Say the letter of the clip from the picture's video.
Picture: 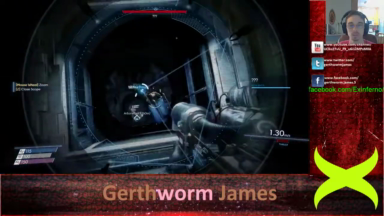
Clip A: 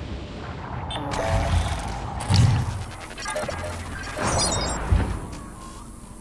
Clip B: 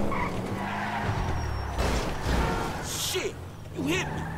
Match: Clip A